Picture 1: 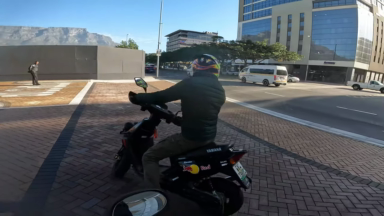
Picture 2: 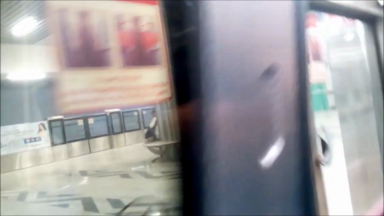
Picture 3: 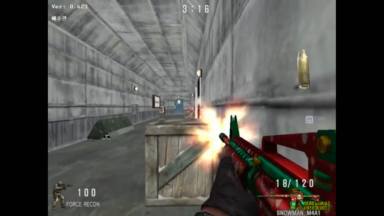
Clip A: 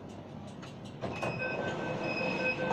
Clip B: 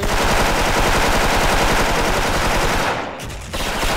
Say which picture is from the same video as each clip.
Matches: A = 2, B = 3